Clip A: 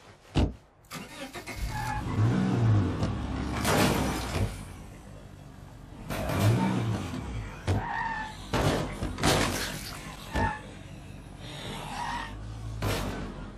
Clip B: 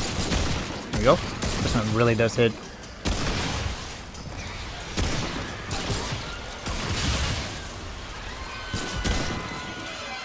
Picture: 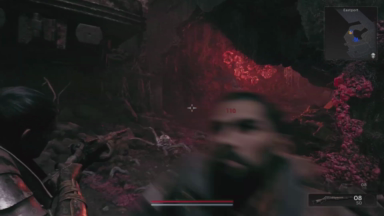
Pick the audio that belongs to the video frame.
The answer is B